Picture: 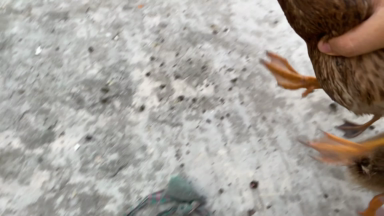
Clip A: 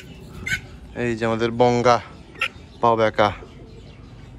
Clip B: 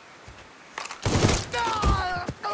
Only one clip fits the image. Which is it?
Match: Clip A